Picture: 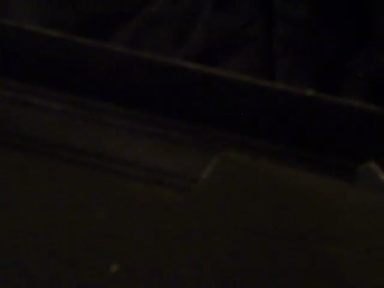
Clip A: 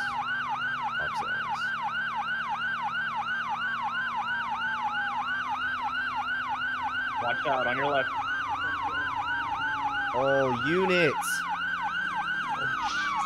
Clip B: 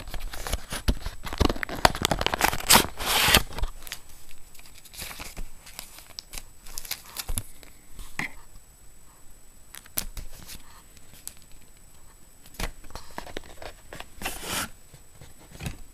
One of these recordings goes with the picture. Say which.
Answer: B